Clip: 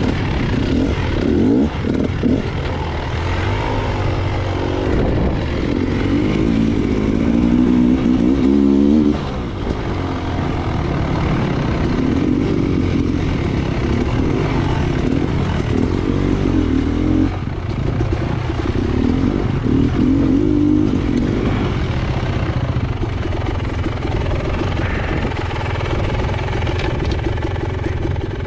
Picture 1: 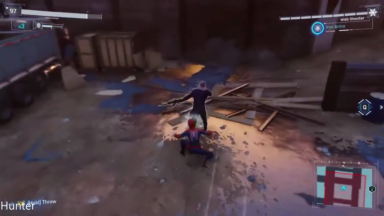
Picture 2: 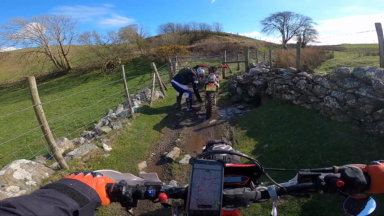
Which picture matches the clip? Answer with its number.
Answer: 2